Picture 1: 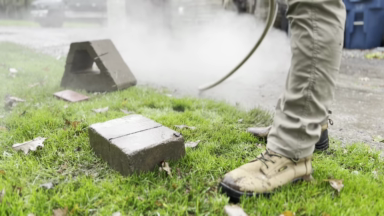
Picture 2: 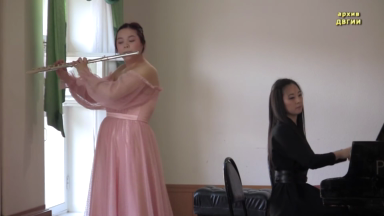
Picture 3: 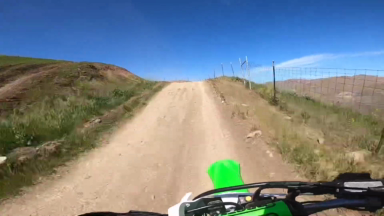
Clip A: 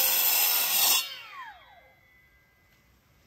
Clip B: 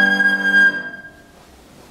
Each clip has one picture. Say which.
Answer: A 1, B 2